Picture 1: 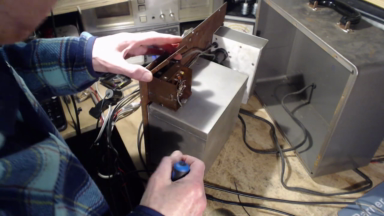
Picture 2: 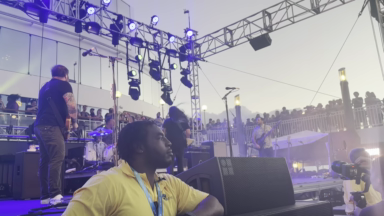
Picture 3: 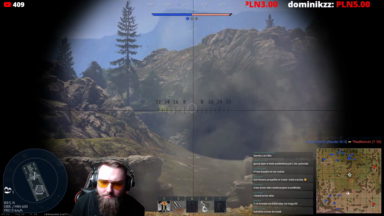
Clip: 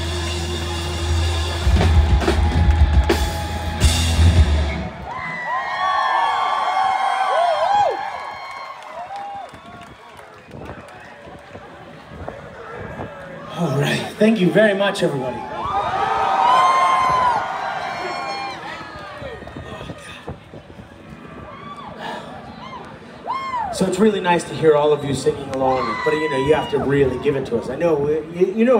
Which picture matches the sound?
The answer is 2